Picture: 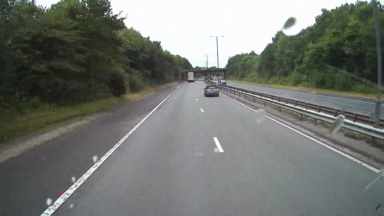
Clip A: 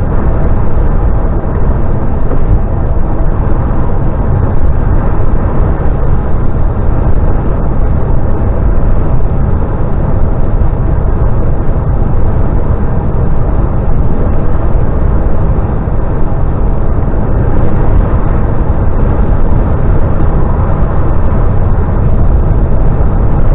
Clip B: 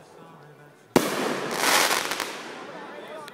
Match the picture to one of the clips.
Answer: A